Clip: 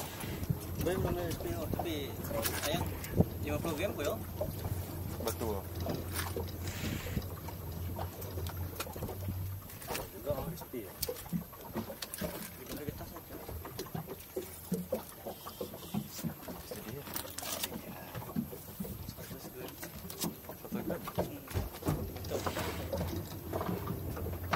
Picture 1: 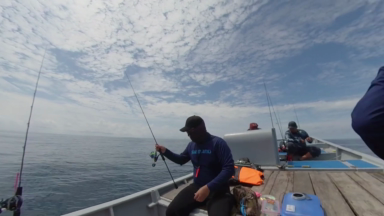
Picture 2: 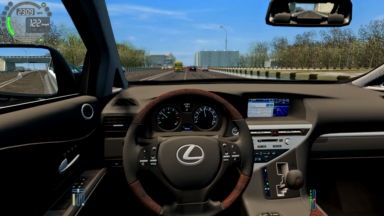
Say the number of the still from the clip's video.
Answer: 1